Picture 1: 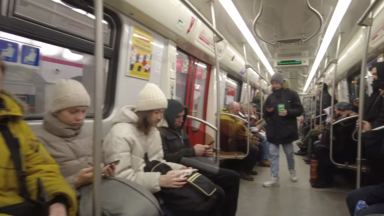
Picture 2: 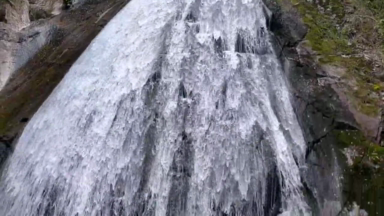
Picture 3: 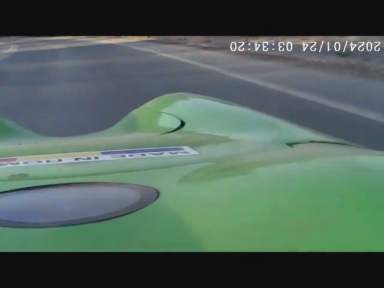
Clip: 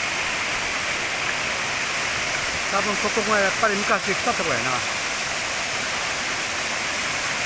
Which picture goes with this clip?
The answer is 2